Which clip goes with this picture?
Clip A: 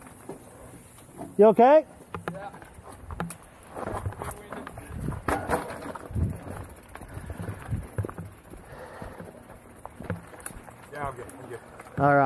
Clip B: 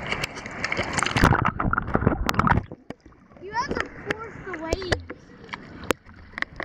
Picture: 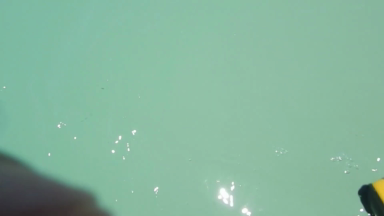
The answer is B